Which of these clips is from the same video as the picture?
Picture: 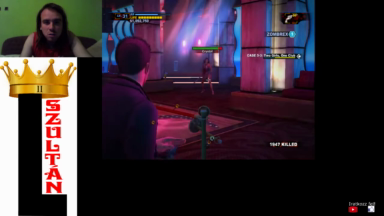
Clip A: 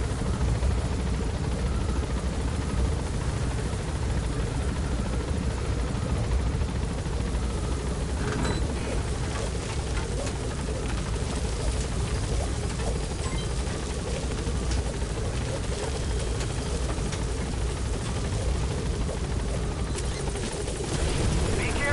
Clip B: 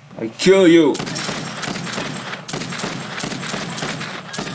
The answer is B